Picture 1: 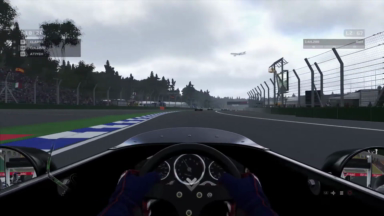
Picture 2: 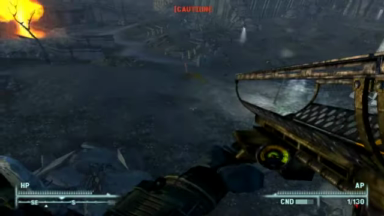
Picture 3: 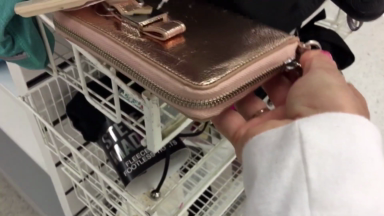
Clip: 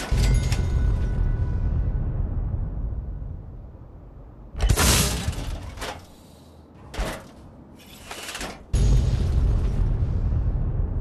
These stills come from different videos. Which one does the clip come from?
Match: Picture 2